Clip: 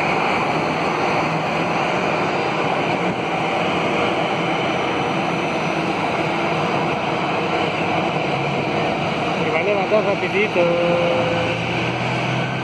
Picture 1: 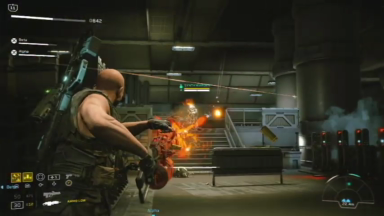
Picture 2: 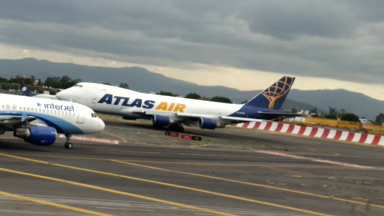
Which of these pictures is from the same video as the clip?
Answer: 2